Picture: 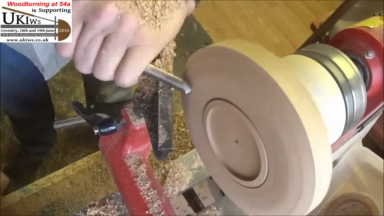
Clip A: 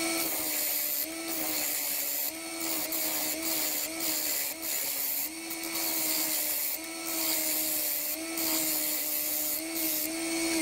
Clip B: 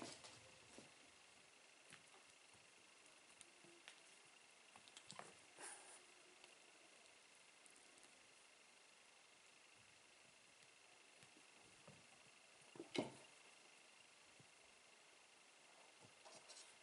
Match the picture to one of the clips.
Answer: A